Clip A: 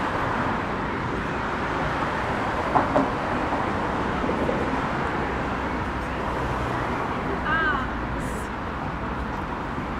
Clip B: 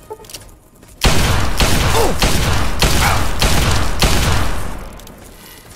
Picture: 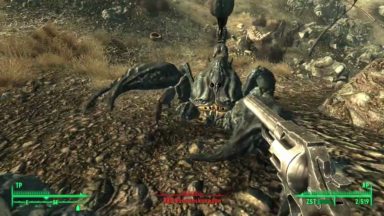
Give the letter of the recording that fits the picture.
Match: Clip B